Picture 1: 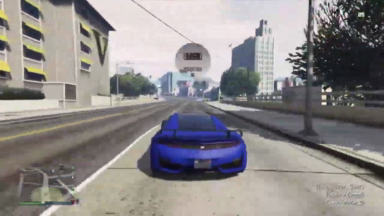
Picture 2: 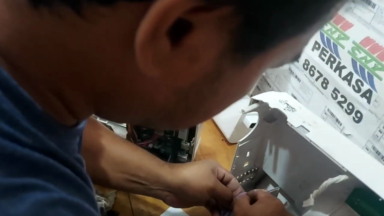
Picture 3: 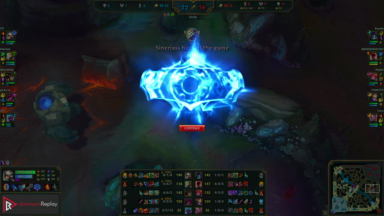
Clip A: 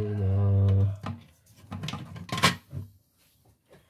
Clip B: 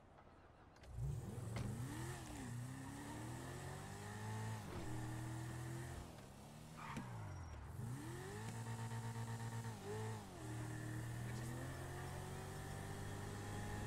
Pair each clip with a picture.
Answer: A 2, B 1